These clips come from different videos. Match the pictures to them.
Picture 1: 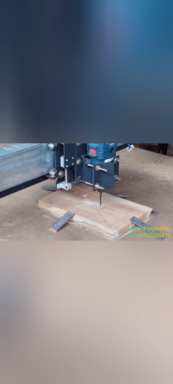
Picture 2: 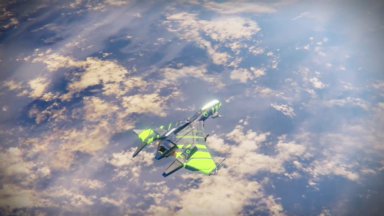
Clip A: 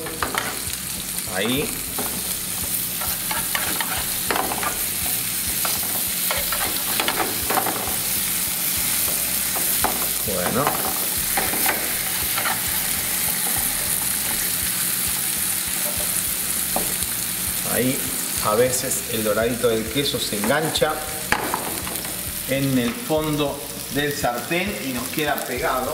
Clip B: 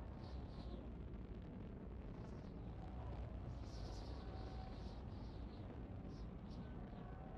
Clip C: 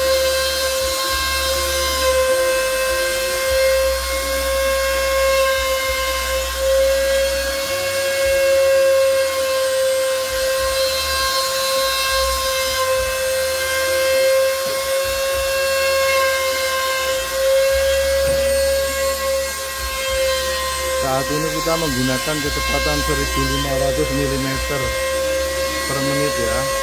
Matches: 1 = C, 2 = B